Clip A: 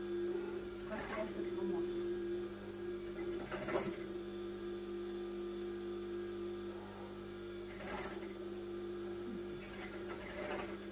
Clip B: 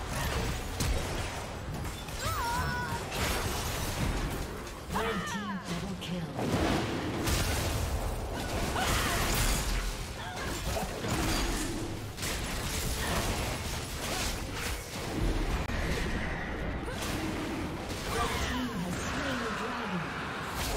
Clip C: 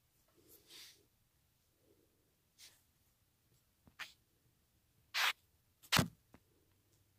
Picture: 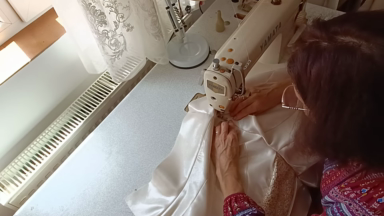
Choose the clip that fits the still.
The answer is A